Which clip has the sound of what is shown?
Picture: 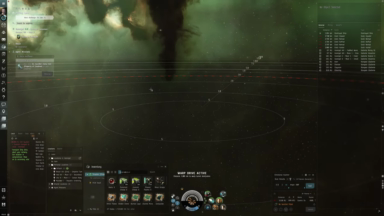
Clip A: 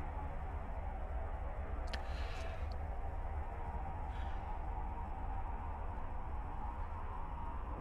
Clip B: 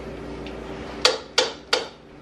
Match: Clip A